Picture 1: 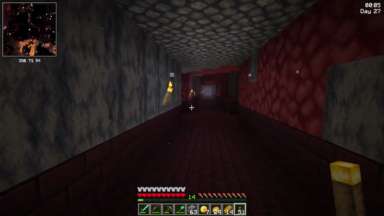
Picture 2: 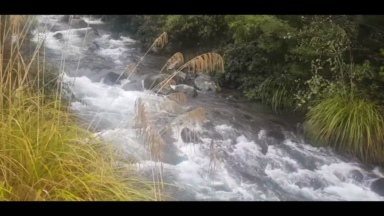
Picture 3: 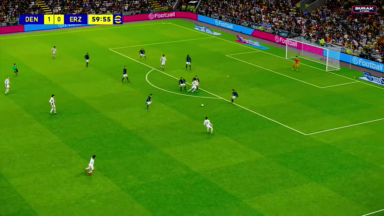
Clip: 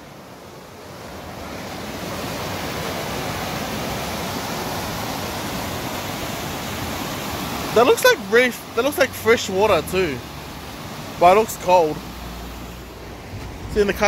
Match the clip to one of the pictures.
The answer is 2